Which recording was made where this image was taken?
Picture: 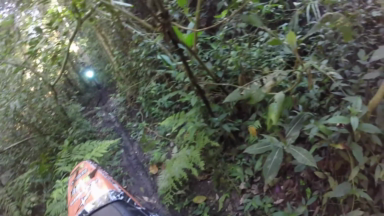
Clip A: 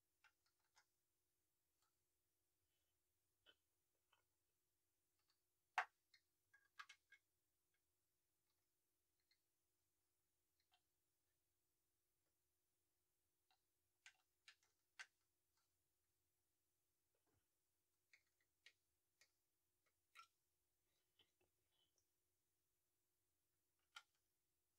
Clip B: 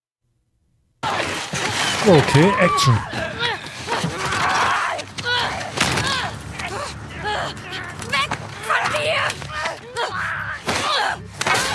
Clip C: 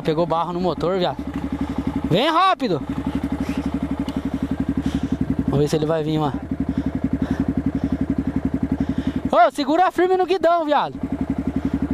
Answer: C